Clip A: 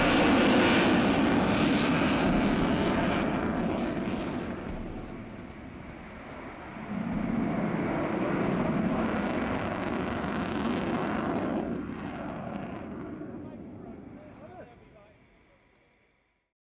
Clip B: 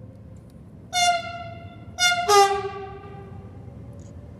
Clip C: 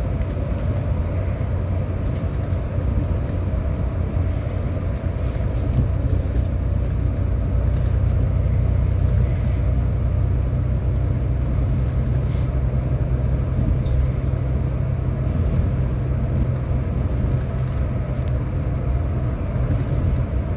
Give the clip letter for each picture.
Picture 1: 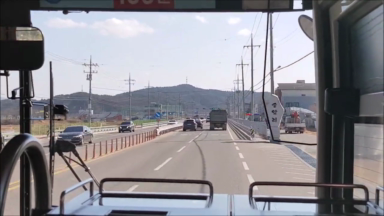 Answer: C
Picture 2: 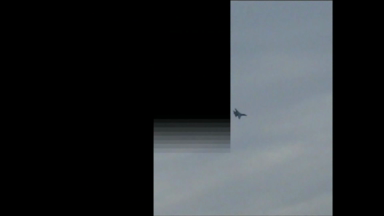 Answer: A